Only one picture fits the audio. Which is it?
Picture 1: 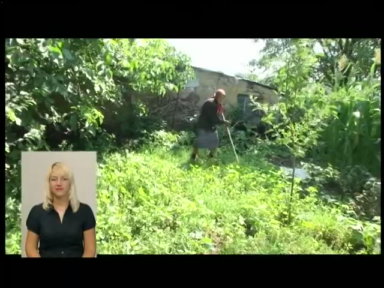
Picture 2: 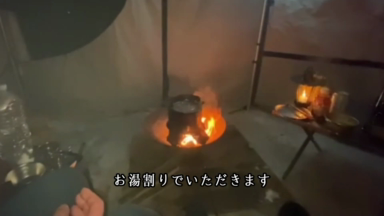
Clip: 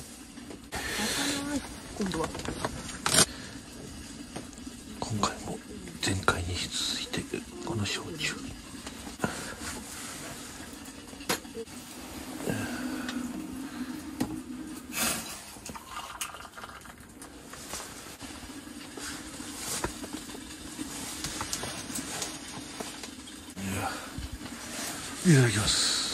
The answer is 2